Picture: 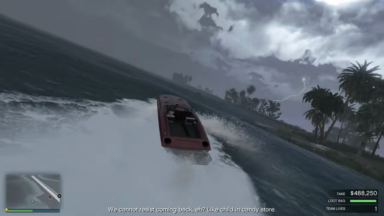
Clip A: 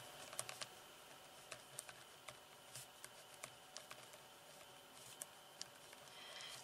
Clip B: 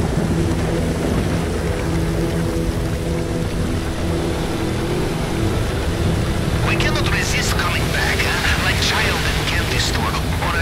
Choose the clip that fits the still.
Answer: B